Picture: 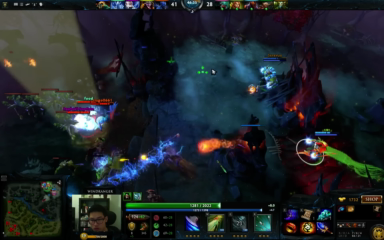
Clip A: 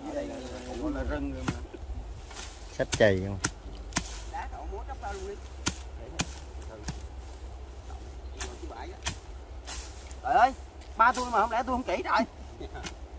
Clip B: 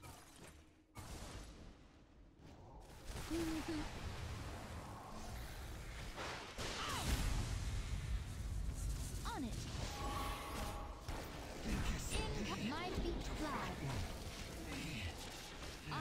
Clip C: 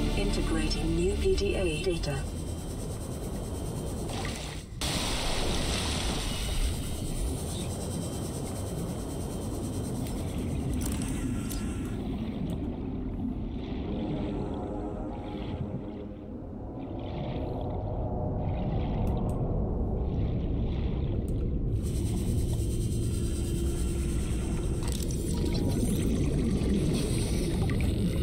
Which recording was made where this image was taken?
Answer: B